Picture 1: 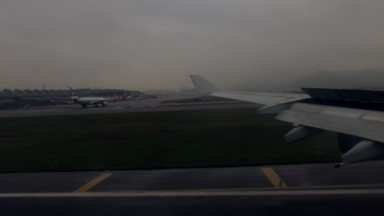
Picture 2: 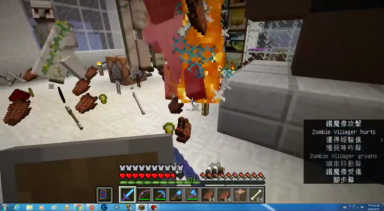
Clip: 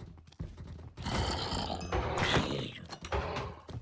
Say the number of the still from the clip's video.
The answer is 2